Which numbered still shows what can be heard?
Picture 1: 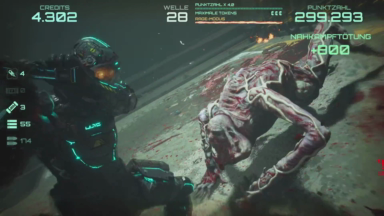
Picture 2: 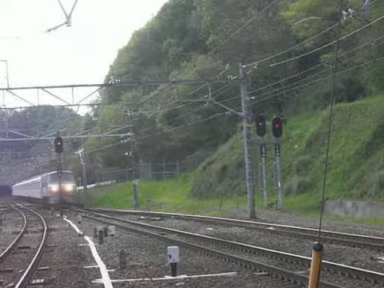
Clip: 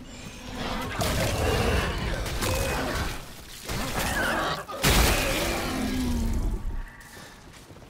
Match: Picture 1